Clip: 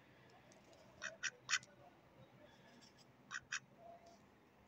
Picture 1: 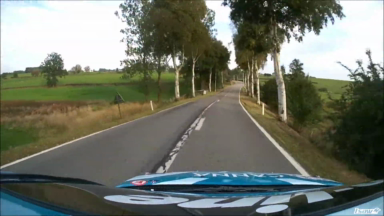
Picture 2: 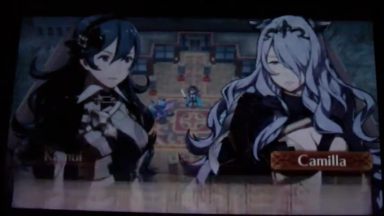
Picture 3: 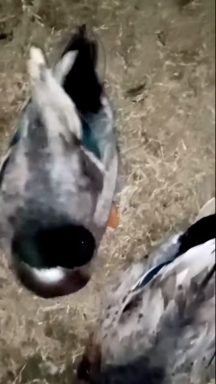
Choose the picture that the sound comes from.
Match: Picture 3